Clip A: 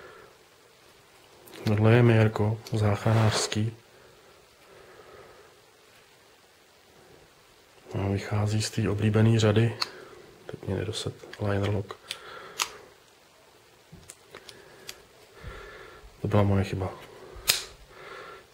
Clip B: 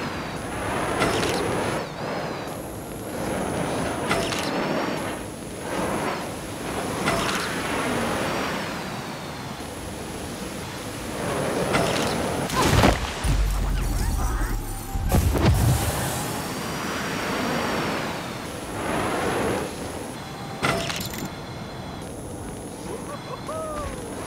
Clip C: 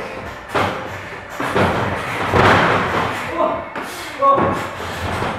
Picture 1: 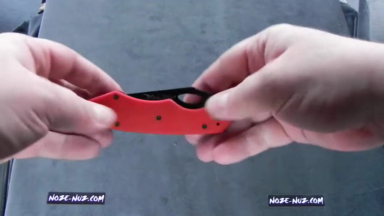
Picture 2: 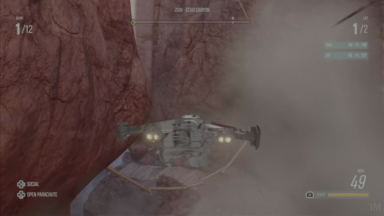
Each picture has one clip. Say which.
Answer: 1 A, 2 B